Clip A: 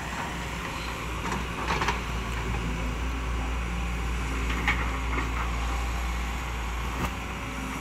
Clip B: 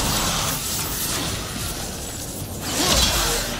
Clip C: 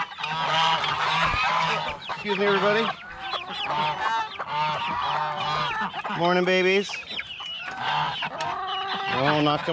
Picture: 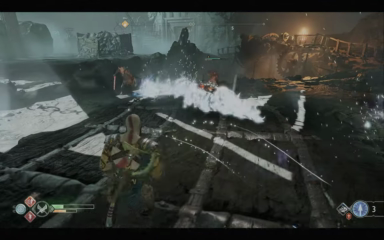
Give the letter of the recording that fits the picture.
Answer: B